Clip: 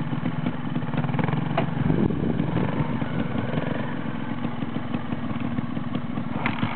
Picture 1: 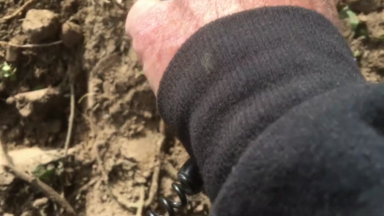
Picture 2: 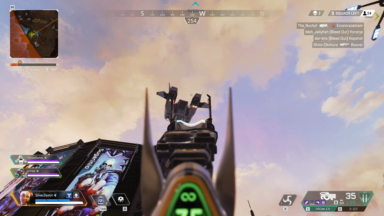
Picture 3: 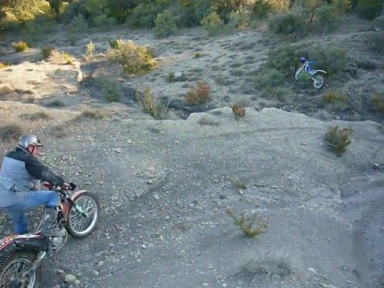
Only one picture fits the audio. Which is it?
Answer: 3